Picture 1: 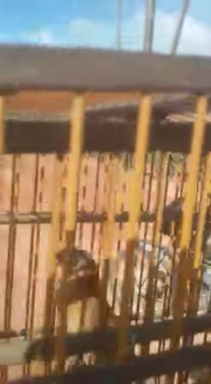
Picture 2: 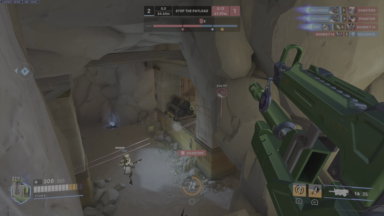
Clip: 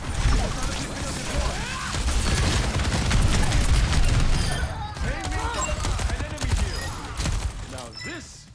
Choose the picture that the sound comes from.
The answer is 2